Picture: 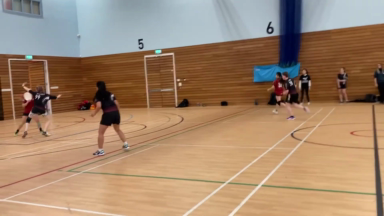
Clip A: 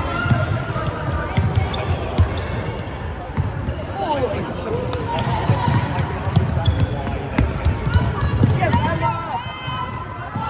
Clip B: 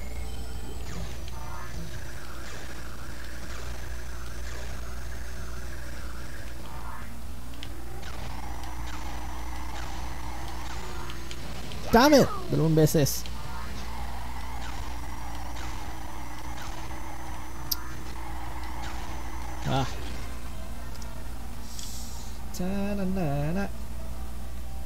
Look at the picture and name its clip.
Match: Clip A